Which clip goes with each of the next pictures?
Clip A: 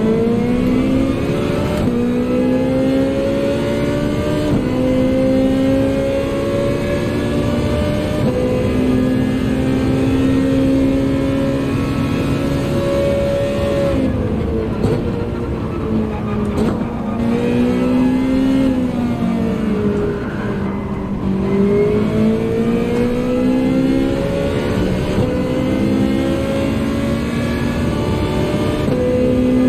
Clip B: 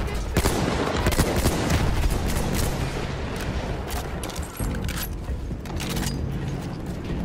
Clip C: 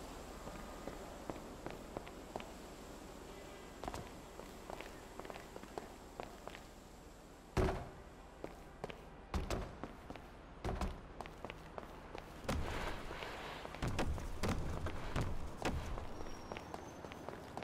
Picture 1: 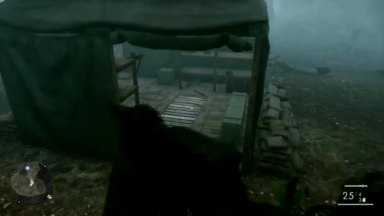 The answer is B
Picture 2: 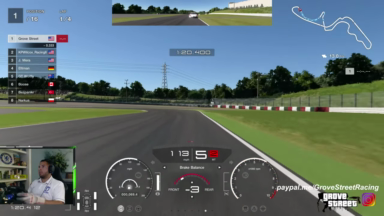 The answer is A